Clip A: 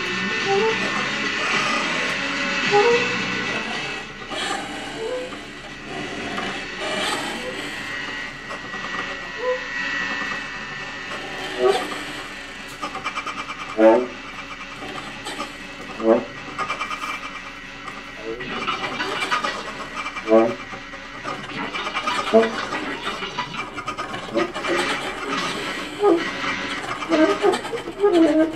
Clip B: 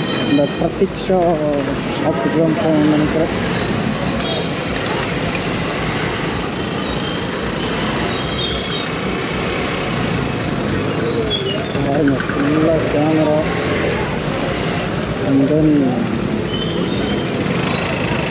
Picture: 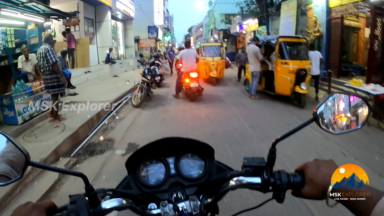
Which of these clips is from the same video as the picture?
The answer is B